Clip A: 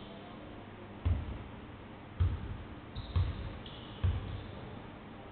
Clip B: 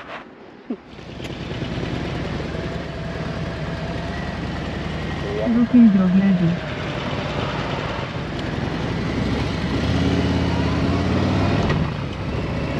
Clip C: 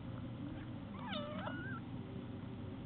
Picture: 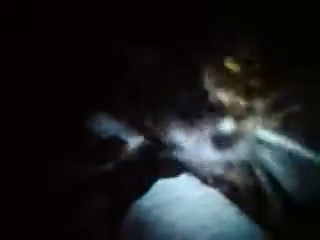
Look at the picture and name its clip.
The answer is C